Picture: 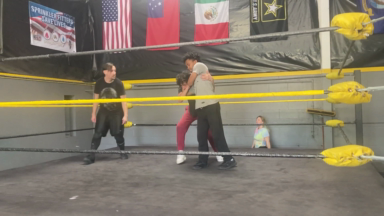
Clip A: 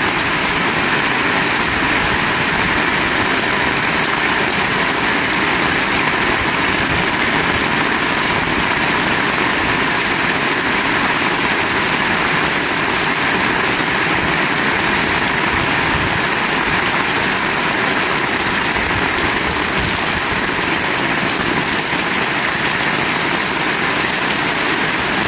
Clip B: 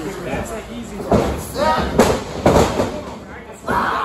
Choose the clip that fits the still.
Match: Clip B